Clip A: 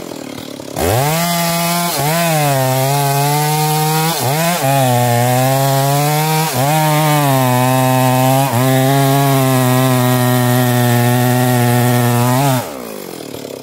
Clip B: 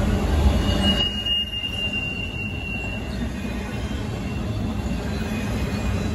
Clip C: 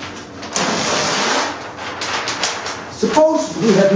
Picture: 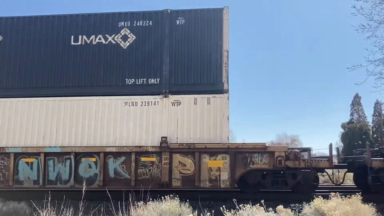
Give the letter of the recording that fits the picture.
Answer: B